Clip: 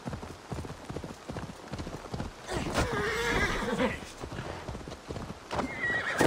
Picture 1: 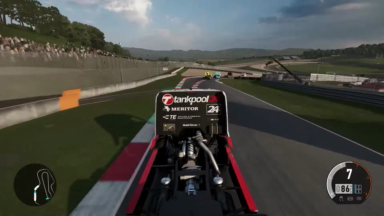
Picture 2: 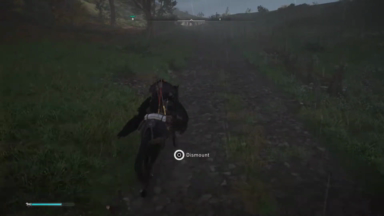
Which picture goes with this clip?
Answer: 2